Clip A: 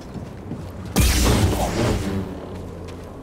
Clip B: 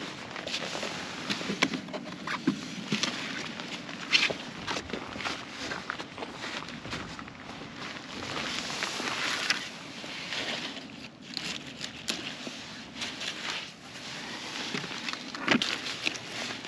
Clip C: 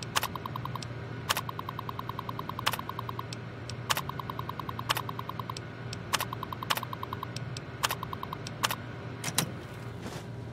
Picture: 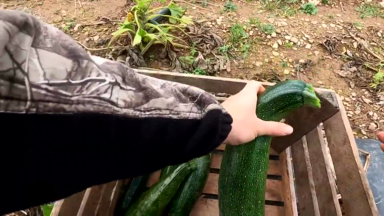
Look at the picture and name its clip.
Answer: B